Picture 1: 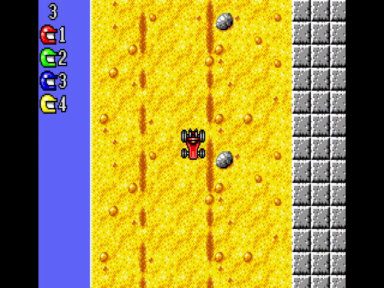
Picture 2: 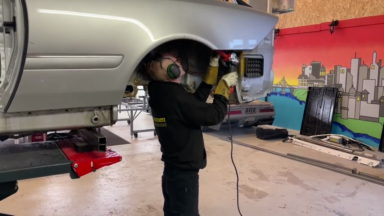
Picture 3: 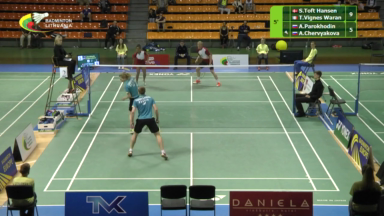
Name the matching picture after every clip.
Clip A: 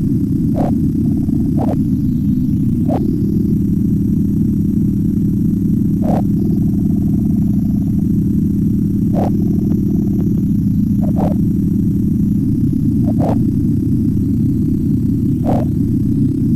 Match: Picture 1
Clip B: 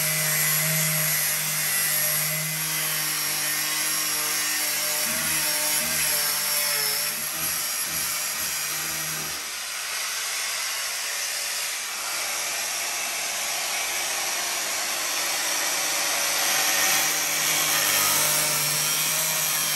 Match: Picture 2